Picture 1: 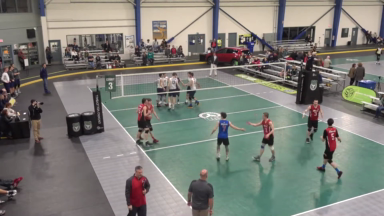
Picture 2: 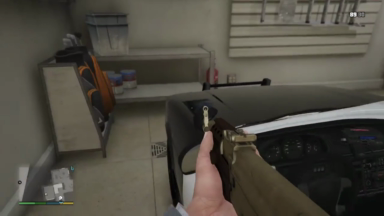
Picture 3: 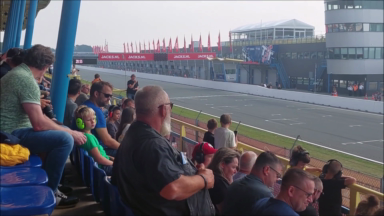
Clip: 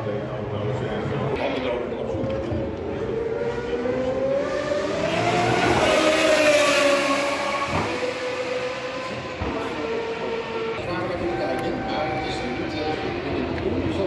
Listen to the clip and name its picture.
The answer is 3